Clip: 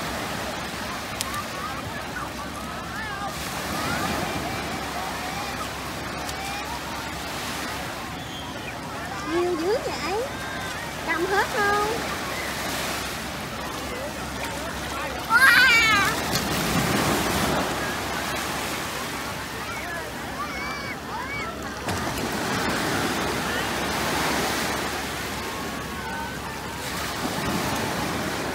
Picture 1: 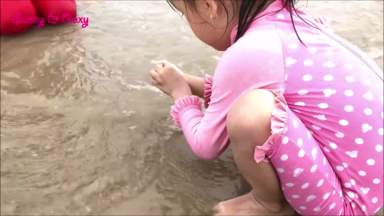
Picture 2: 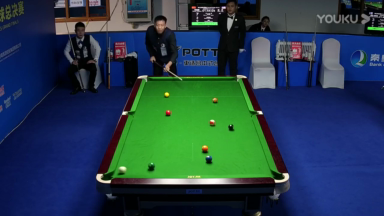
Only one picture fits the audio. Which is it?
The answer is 1